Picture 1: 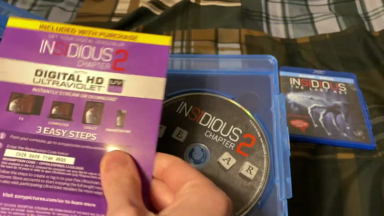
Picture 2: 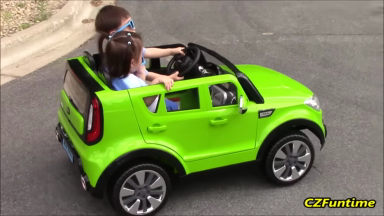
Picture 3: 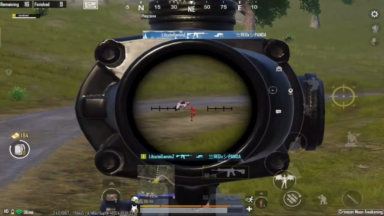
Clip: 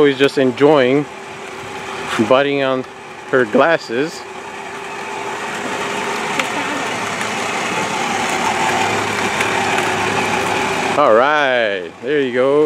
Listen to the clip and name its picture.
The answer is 2